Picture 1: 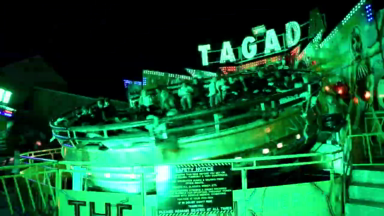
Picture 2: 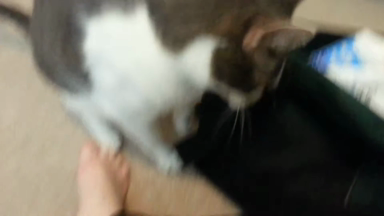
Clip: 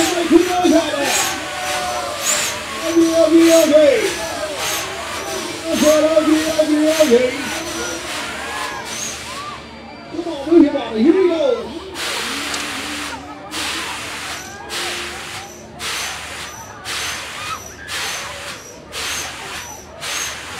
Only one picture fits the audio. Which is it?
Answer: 1